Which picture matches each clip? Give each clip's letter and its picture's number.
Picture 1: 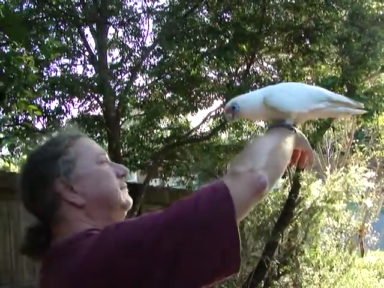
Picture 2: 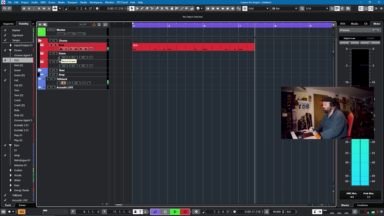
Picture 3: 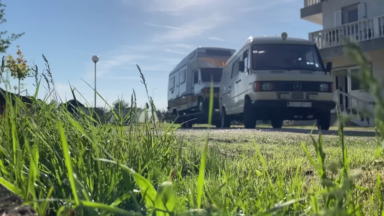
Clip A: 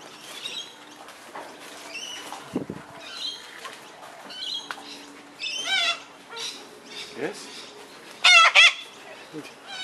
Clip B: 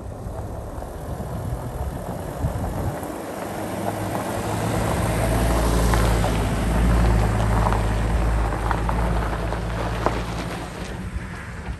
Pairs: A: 1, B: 3